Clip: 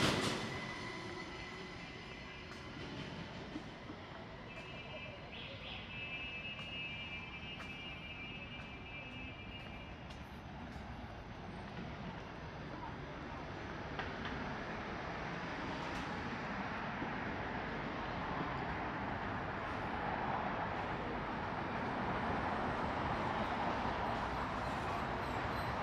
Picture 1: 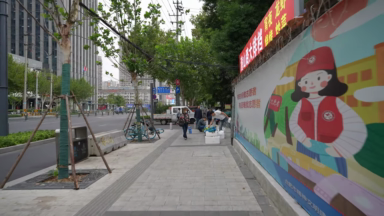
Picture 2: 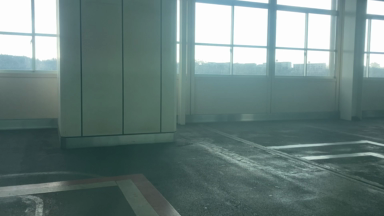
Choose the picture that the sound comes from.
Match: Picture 1